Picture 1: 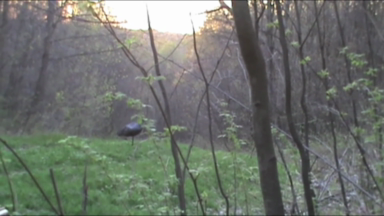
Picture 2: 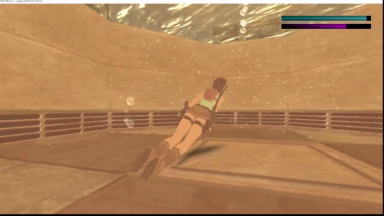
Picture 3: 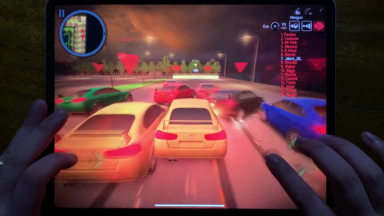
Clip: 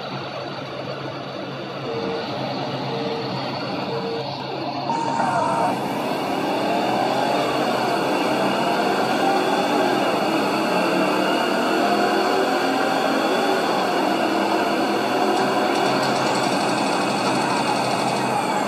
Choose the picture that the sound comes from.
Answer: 3